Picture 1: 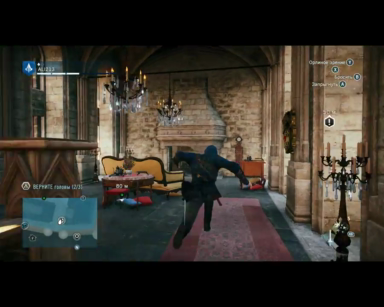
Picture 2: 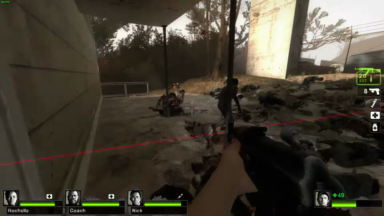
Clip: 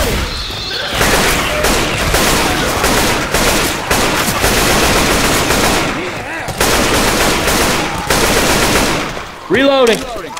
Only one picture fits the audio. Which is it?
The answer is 2